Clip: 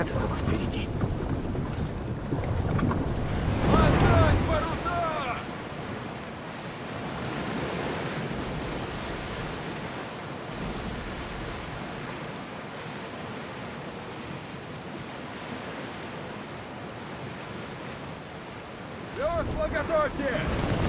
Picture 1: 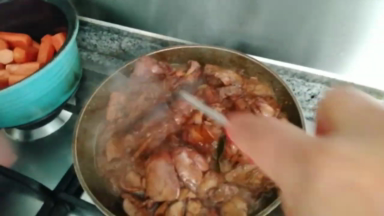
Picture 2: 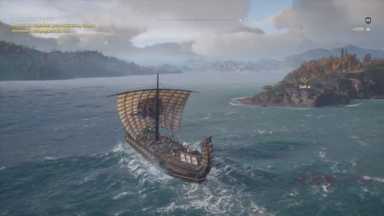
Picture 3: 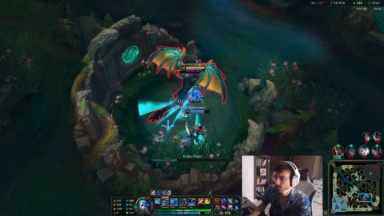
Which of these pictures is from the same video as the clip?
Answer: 2